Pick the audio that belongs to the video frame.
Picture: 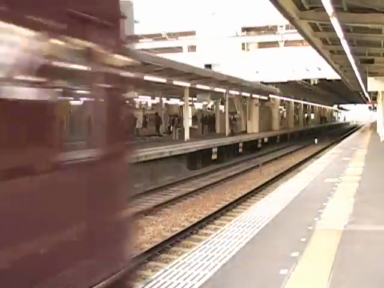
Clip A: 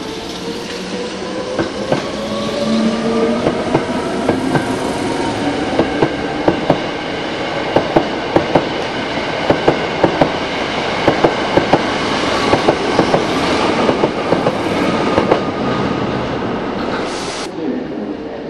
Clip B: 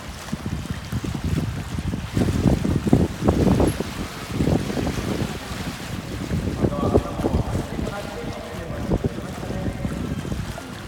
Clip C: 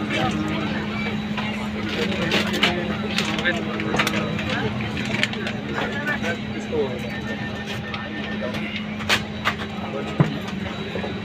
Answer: A